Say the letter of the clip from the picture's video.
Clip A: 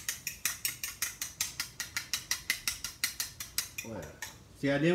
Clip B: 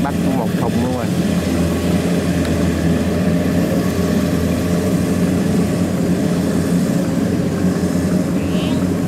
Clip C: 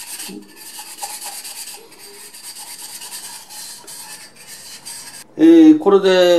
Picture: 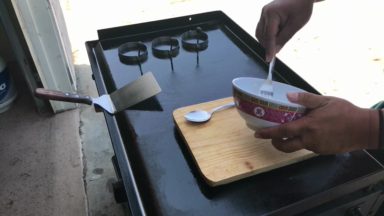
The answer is A